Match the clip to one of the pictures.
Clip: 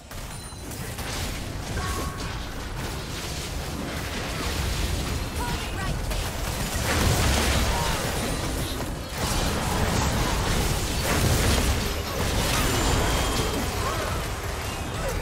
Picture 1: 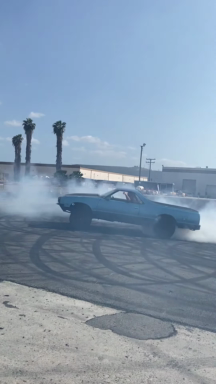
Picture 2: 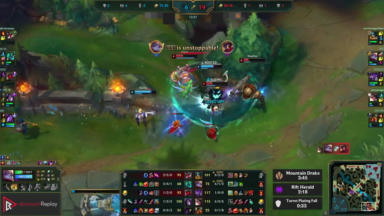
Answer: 2